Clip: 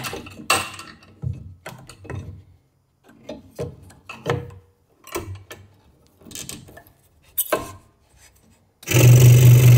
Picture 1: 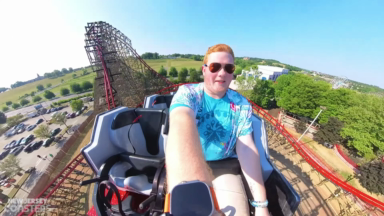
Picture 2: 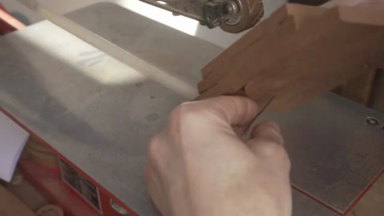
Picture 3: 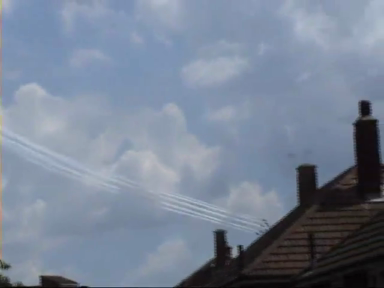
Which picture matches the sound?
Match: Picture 2